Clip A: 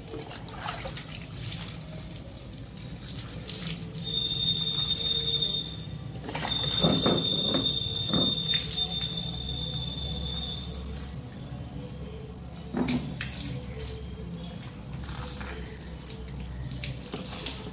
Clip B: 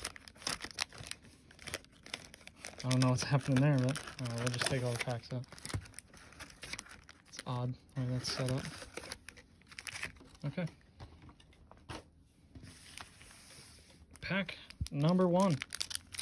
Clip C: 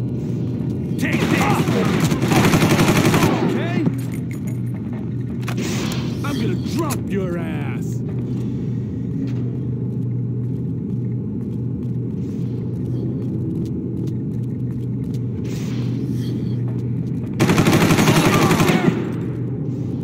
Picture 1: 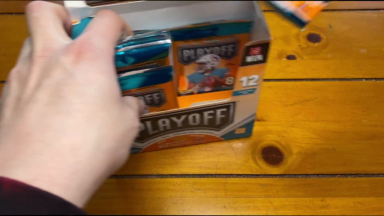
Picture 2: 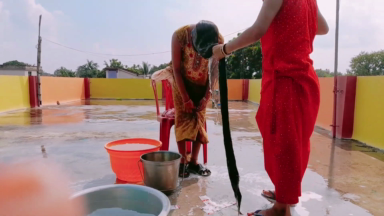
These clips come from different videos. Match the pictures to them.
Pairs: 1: B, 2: A